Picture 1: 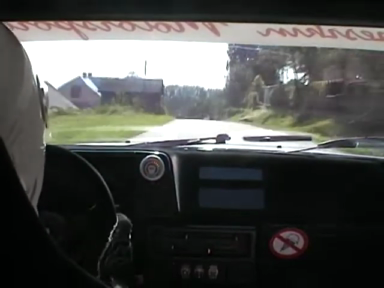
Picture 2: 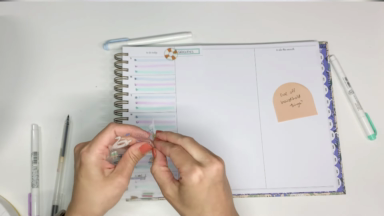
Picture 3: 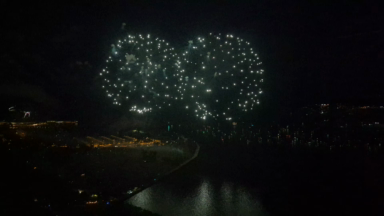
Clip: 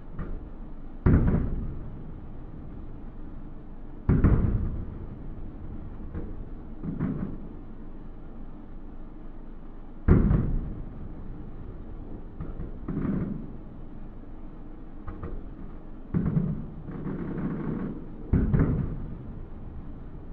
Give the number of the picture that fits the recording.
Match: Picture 3